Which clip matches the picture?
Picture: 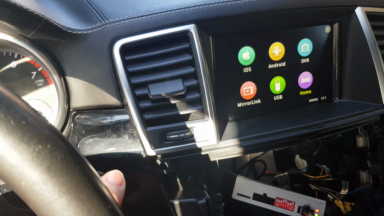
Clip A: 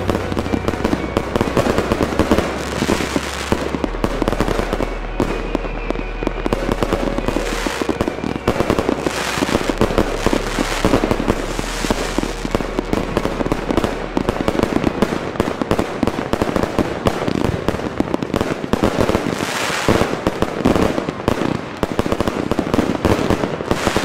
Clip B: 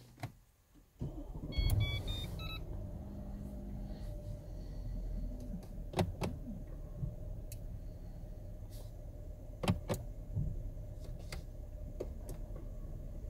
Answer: B